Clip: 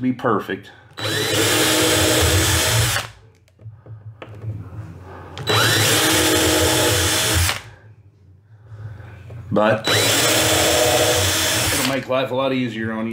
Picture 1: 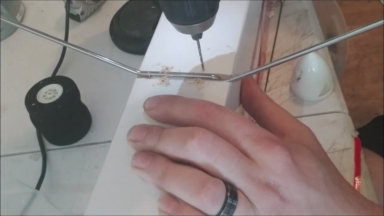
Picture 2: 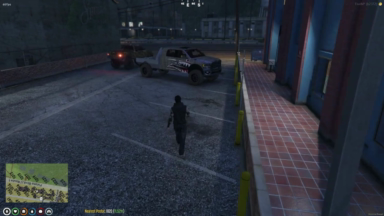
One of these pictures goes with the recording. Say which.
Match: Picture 1